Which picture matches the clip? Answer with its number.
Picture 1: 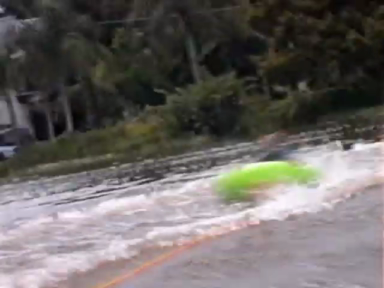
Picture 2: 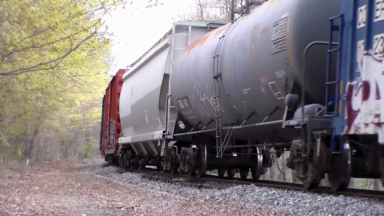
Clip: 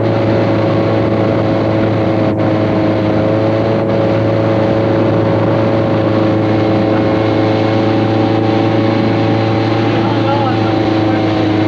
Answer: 1